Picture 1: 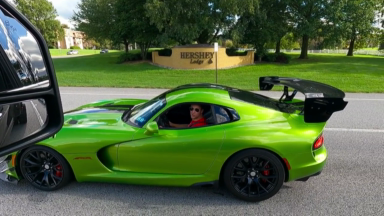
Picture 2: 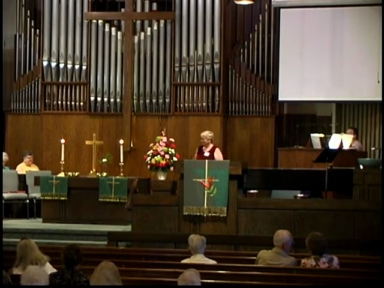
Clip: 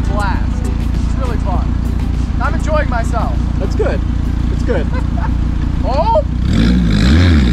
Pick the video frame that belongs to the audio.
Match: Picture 1